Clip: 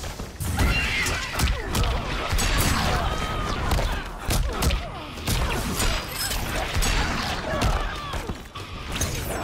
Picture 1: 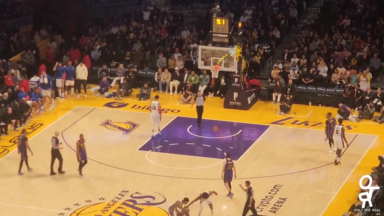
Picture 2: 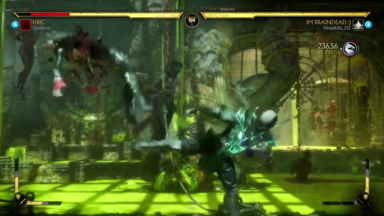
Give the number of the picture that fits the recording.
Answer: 2